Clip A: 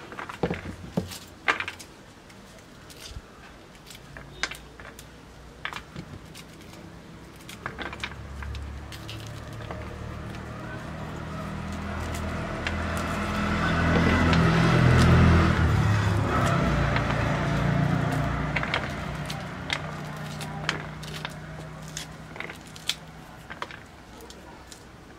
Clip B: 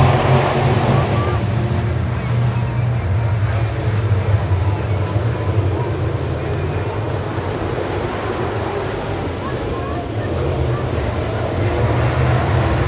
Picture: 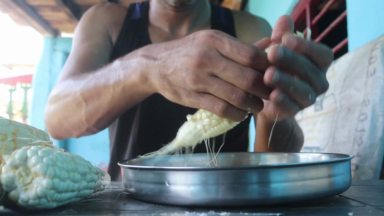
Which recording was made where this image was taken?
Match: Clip A